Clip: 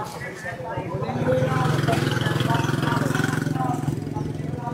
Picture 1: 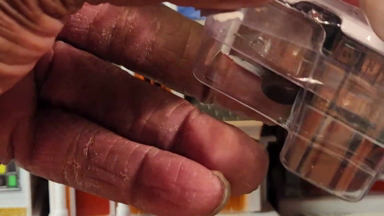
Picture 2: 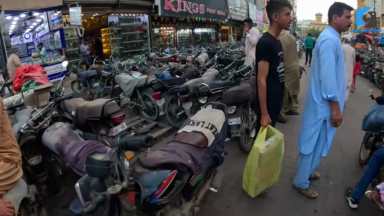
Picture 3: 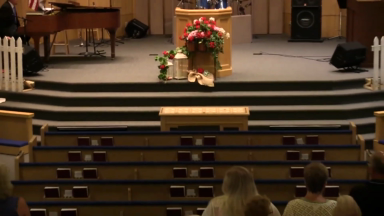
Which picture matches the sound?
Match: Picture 2